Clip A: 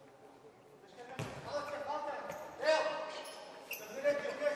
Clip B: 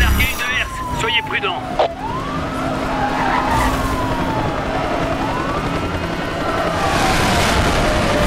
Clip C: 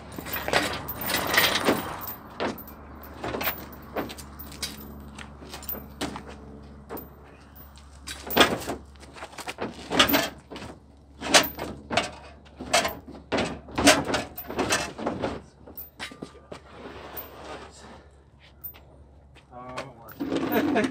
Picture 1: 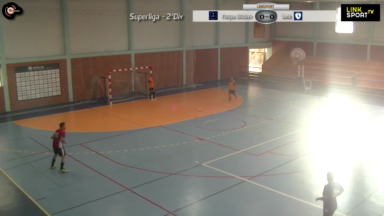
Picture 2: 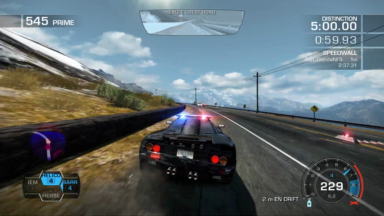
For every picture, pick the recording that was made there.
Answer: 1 A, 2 B